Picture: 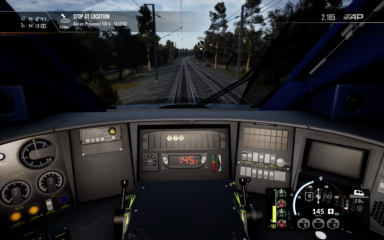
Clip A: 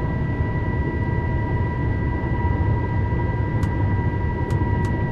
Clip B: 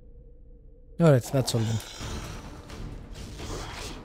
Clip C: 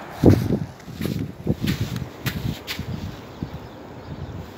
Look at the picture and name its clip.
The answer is A